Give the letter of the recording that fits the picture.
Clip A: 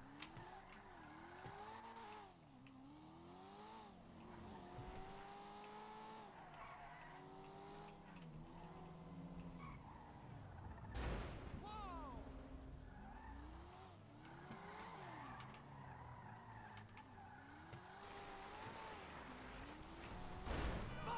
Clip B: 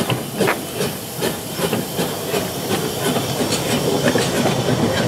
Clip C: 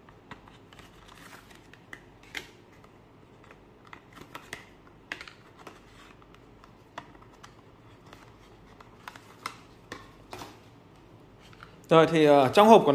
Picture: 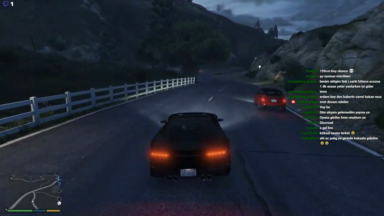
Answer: A